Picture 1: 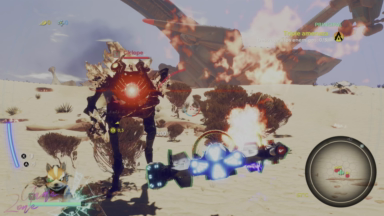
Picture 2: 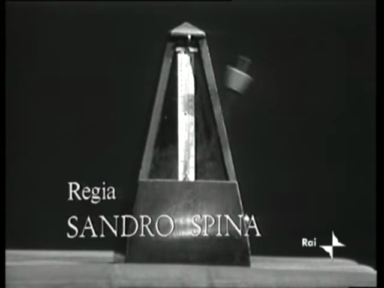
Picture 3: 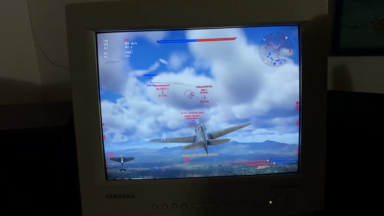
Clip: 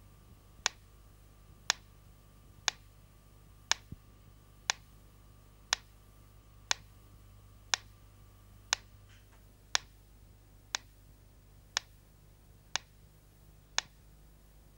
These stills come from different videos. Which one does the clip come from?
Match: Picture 2